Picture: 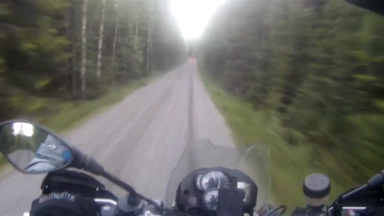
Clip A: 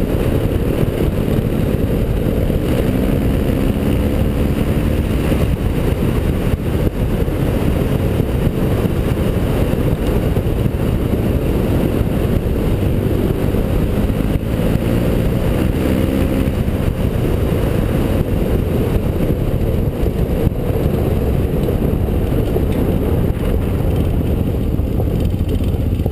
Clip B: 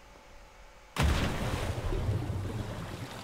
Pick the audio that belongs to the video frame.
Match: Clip A